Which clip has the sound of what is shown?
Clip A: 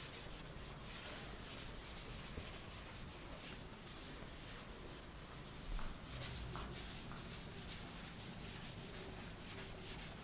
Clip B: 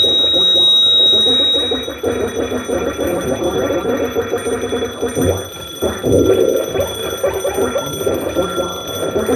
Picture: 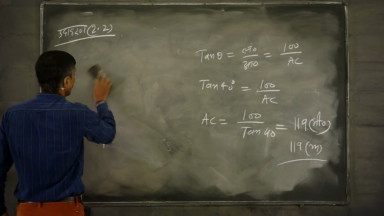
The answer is A